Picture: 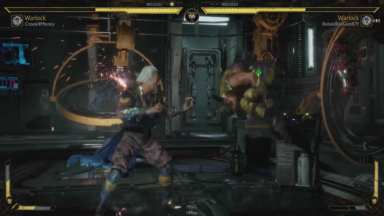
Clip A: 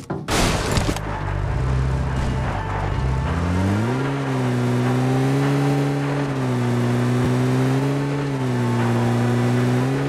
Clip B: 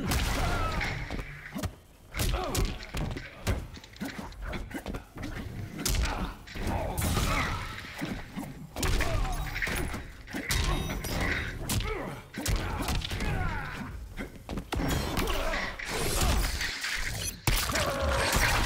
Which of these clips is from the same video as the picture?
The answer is B